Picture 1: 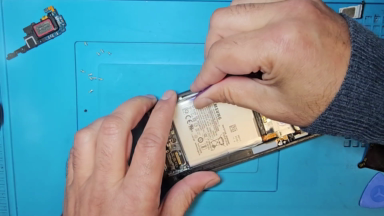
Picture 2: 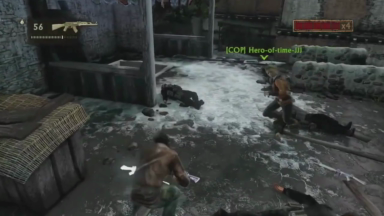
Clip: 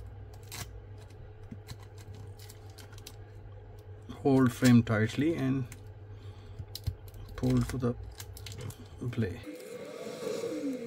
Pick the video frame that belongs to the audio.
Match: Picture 1